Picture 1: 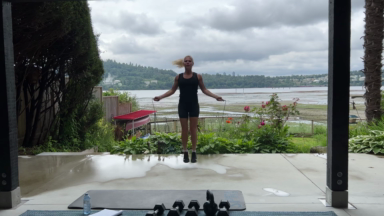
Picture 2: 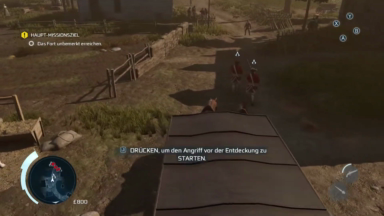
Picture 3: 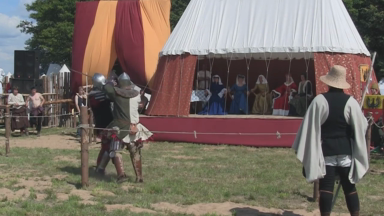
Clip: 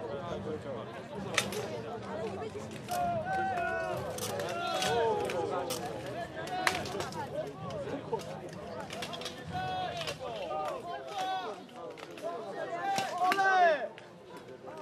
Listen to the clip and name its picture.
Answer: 3